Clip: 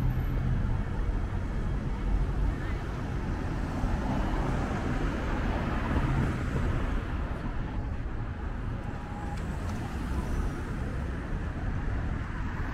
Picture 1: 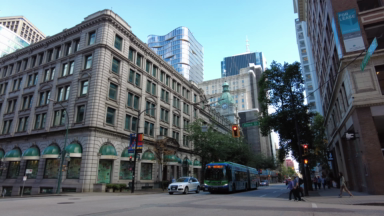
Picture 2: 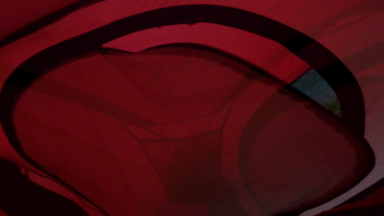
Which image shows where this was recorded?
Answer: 1